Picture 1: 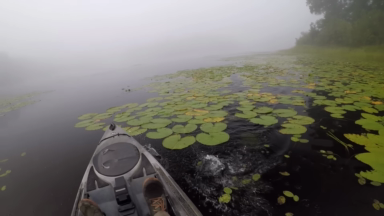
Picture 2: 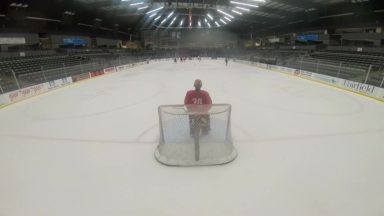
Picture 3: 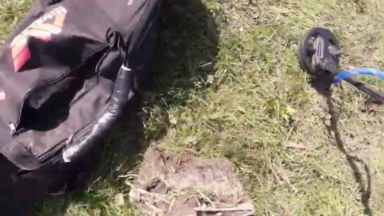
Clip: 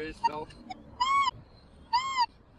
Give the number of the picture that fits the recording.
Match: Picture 3